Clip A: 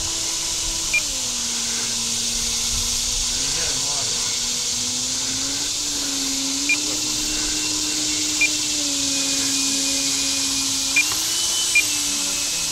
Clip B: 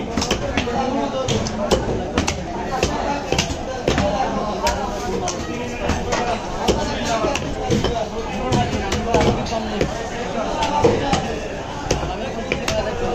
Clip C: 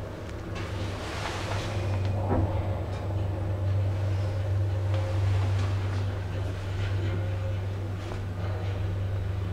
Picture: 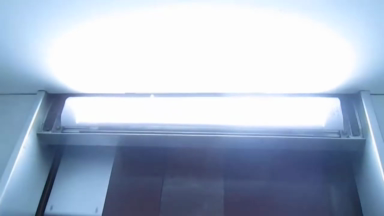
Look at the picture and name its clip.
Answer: C